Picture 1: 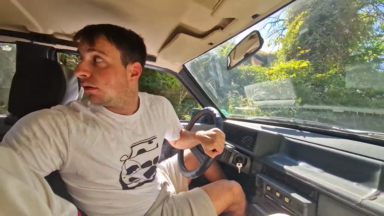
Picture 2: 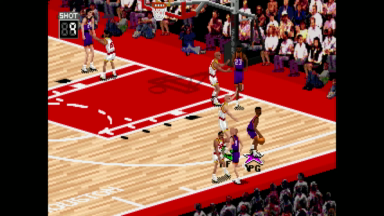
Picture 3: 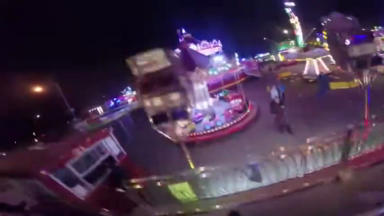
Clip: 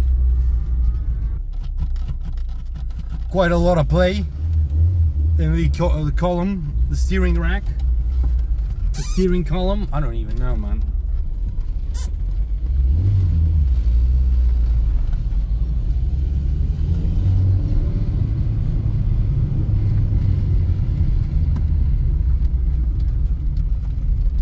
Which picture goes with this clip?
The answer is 1